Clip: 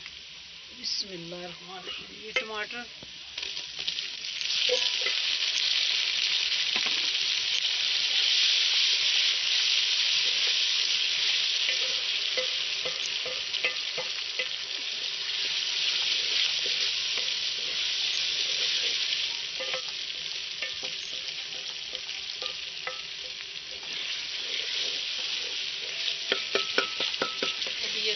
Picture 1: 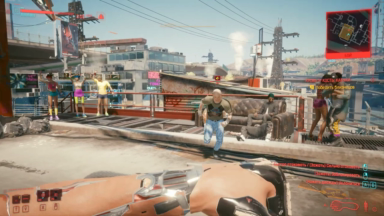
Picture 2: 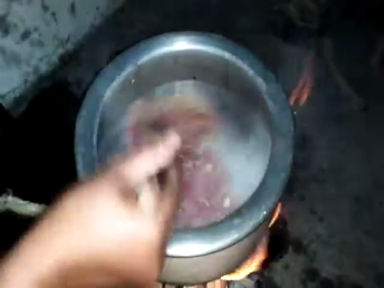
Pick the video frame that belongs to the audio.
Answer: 2